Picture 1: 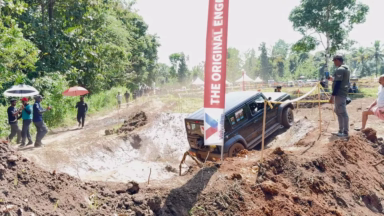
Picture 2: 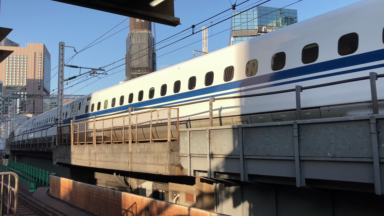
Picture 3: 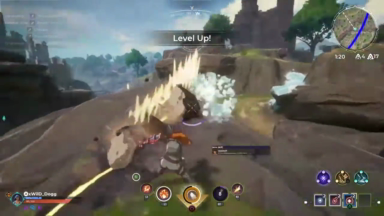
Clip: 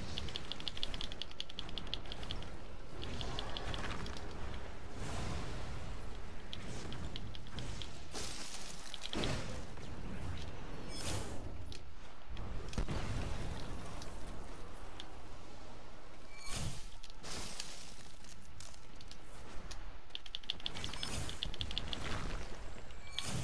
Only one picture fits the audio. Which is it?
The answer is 3